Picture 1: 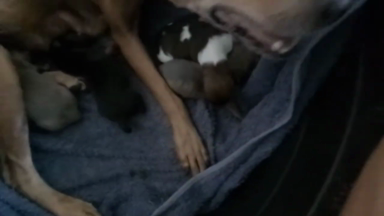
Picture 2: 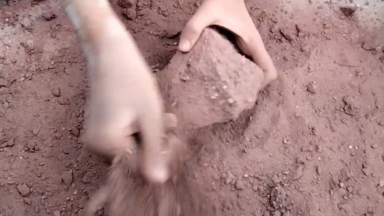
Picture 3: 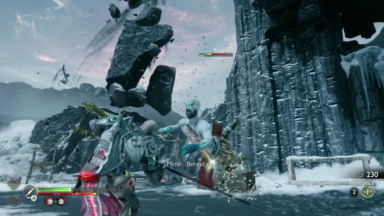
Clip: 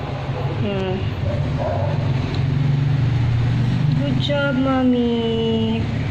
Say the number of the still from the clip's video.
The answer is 1